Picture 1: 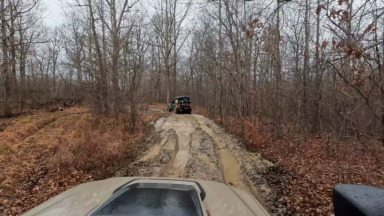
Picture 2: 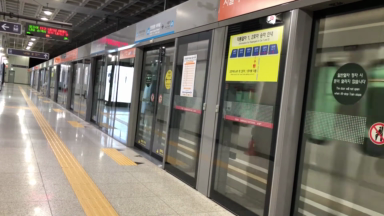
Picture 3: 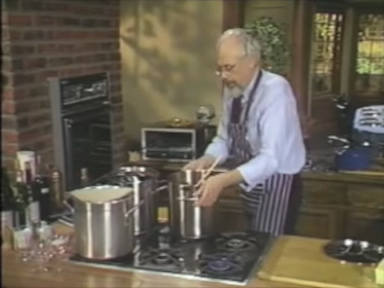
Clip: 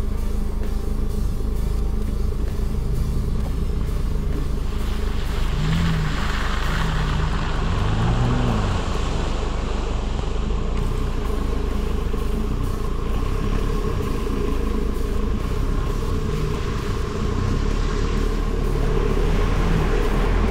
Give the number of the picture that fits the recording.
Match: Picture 1